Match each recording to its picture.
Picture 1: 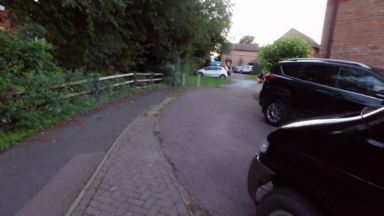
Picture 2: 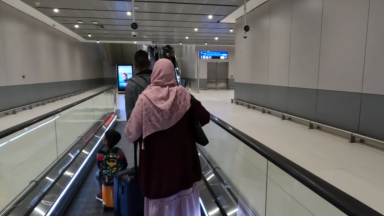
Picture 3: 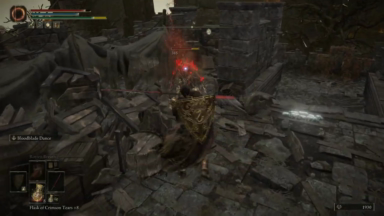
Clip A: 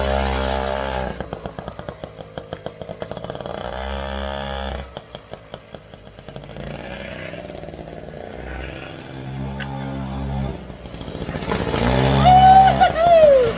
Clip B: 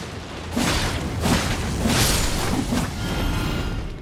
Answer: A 1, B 3